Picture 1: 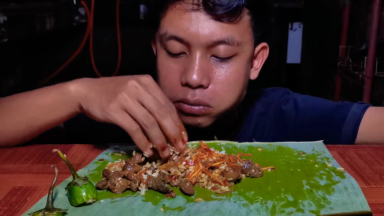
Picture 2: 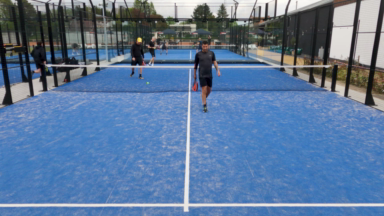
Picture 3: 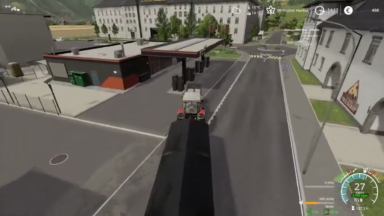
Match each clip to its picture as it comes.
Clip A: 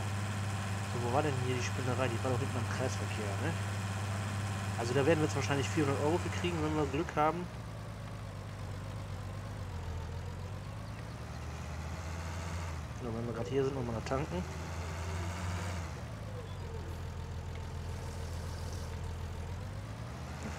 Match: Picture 3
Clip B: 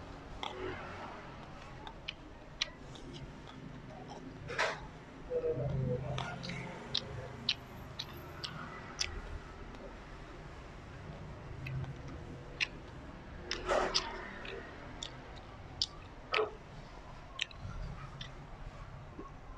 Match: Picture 1